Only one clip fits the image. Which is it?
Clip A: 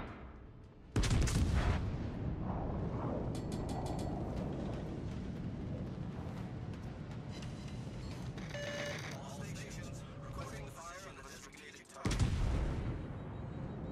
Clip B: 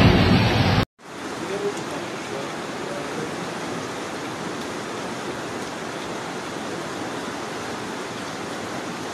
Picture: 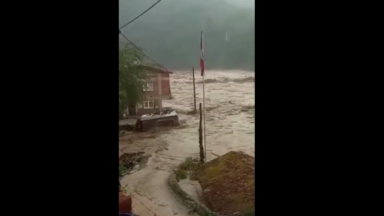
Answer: B